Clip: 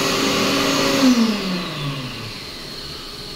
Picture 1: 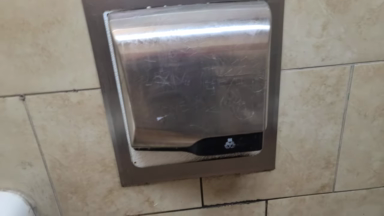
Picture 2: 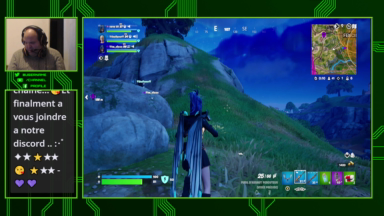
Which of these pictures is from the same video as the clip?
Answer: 1